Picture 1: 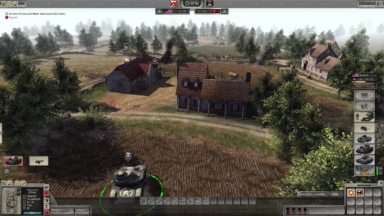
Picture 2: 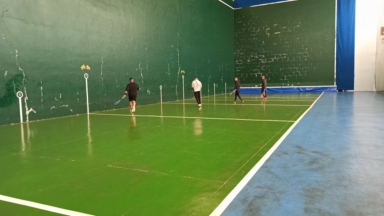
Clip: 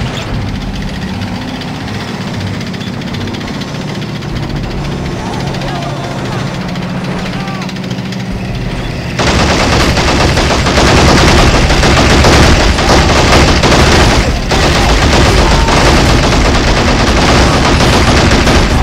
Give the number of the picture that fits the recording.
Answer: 1